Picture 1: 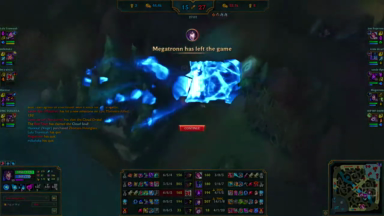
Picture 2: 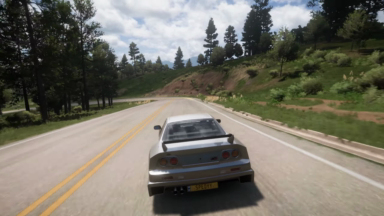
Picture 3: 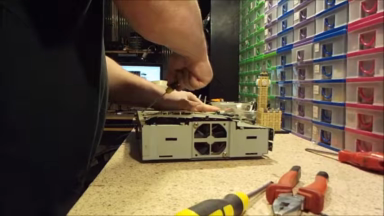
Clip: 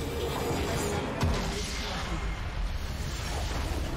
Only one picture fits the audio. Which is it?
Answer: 1